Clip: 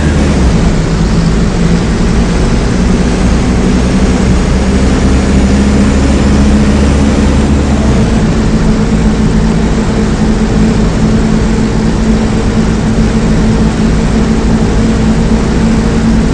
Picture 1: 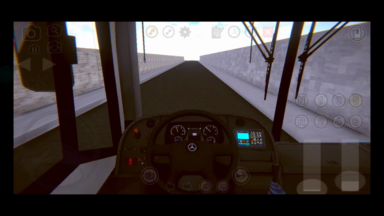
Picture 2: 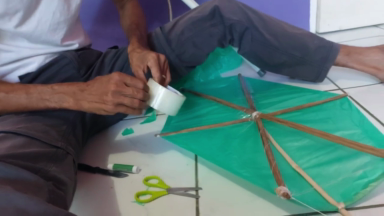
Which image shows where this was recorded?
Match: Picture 1